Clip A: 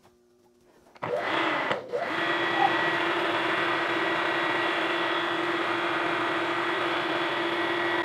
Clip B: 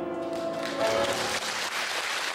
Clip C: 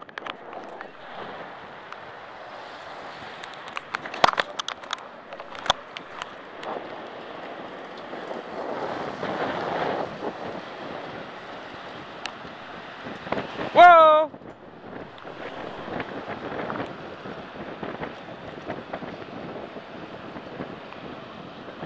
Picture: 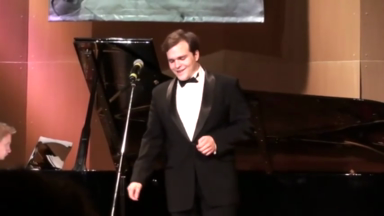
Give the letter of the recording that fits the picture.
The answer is B